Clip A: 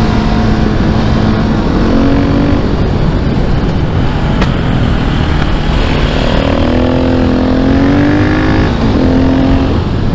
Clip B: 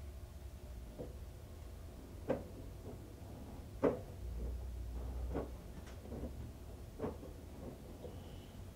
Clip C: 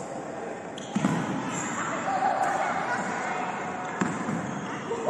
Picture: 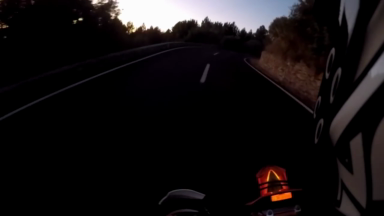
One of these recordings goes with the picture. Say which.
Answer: A